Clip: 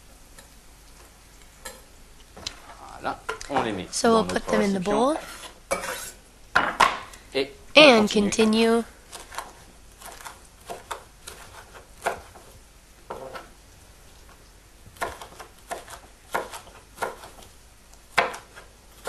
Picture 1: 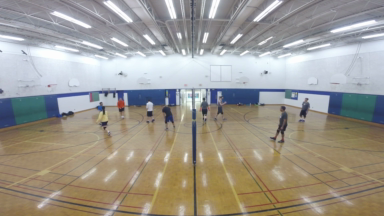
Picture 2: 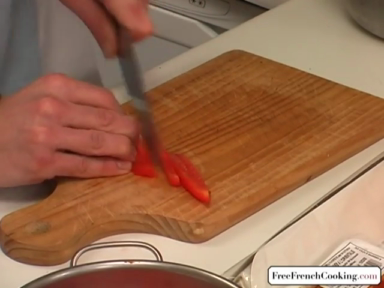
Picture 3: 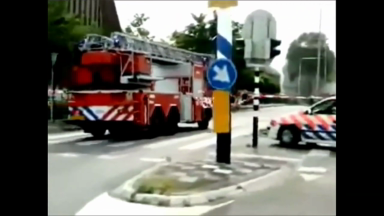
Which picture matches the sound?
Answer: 2